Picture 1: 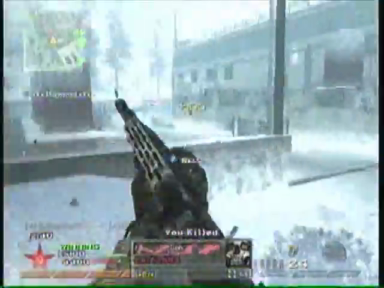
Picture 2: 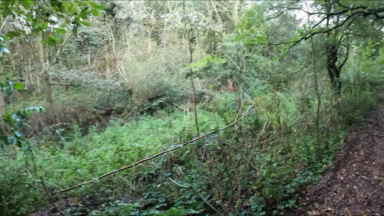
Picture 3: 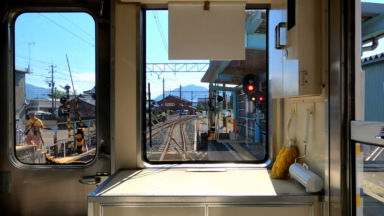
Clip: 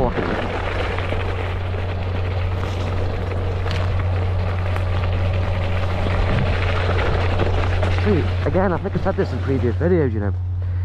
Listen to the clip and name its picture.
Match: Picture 2